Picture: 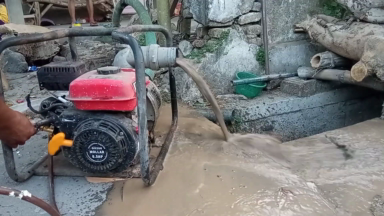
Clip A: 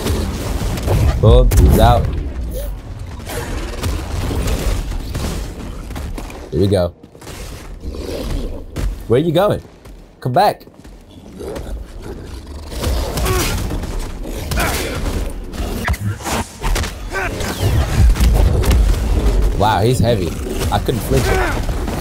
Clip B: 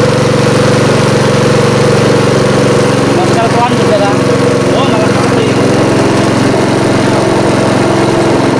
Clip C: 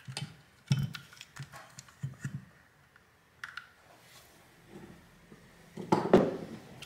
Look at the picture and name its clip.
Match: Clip B